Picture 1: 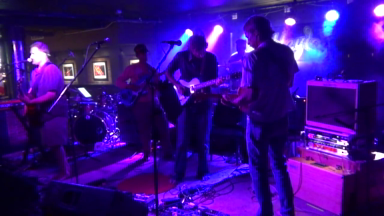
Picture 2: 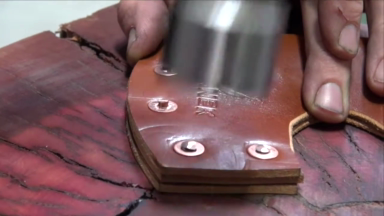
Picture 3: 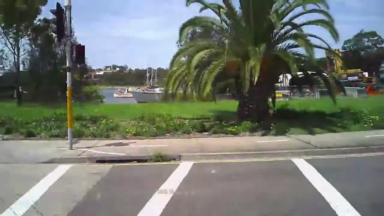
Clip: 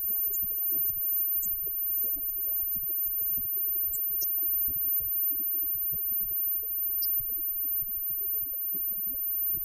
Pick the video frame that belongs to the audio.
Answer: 1